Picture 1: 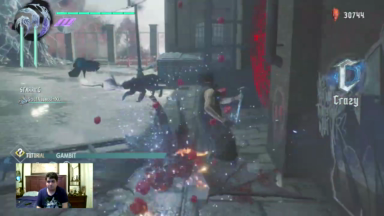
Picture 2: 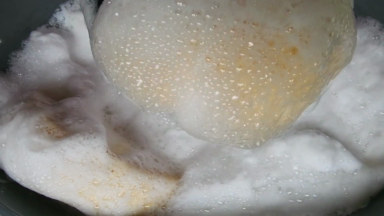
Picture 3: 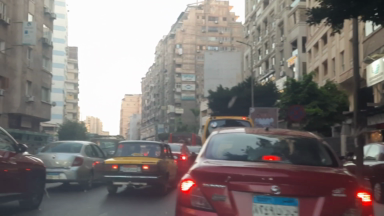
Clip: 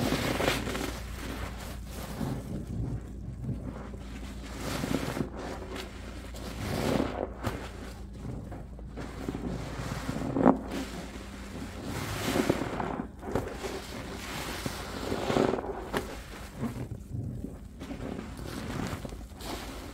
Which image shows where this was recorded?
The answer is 2